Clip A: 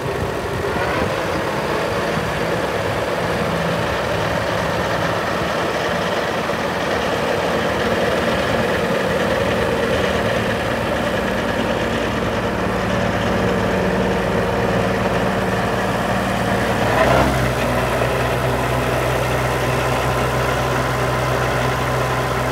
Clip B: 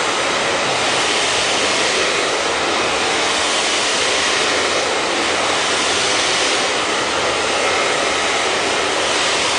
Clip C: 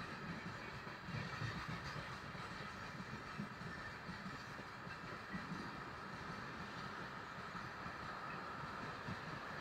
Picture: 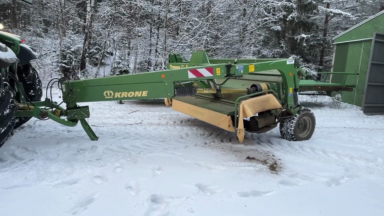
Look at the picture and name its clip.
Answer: A